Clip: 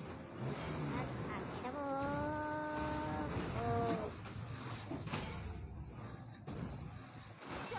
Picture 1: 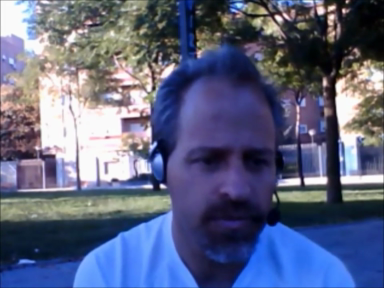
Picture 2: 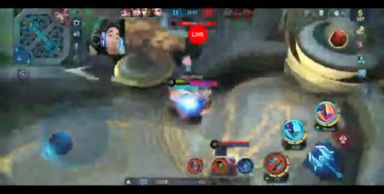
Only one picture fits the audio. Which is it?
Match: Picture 2